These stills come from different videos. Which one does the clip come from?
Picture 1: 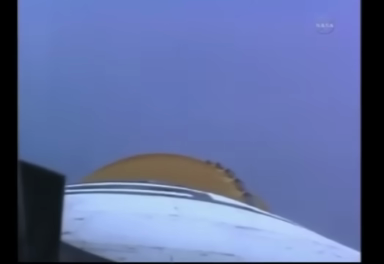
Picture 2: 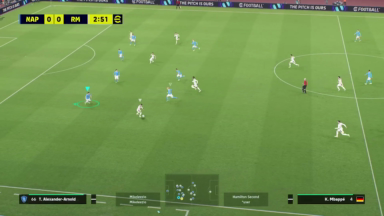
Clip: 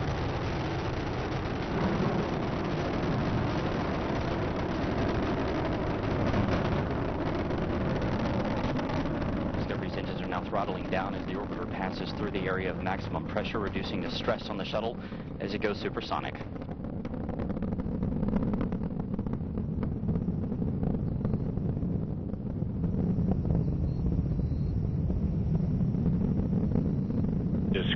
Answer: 1